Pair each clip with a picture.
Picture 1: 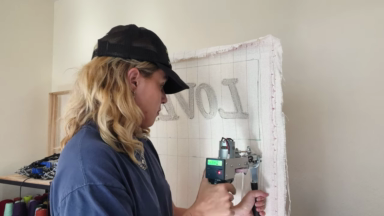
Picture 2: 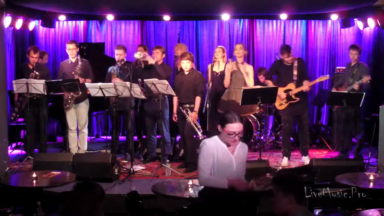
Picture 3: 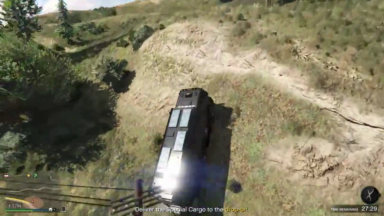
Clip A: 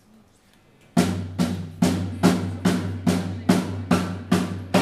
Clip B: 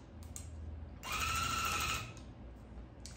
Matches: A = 2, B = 1